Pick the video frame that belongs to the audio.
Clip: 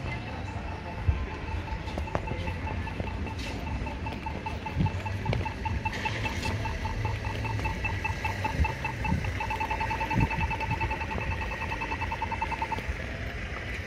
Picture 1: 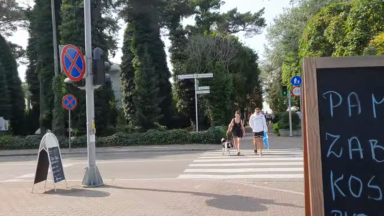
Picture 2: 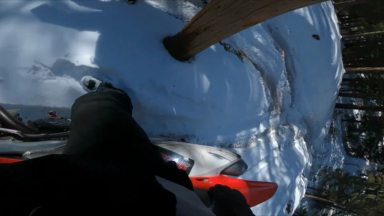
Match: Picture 1